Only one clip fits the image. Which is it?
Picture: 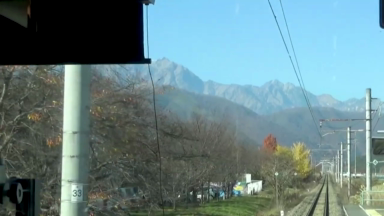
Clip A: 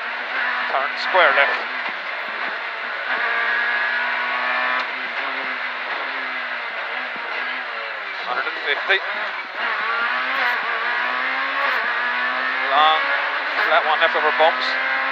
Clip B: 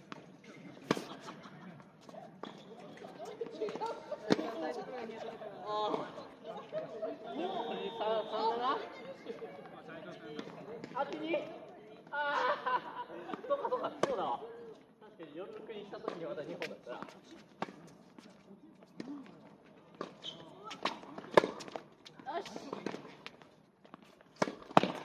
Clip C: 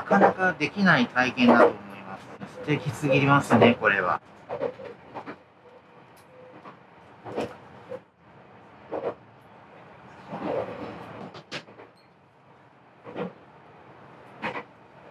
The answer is C